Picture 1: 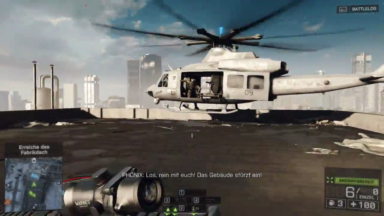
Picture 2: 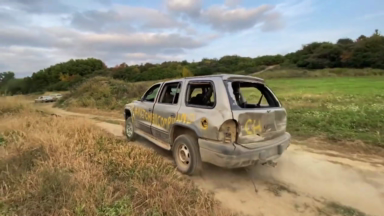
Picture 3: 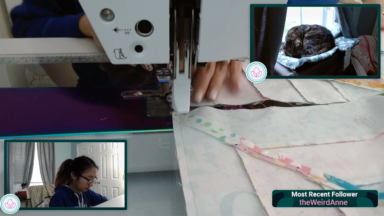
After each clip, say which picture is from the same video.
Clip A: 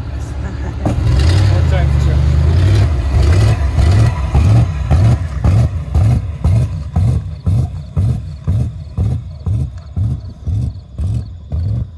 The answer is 2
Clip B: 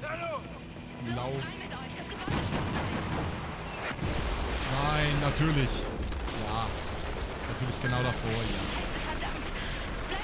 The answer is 1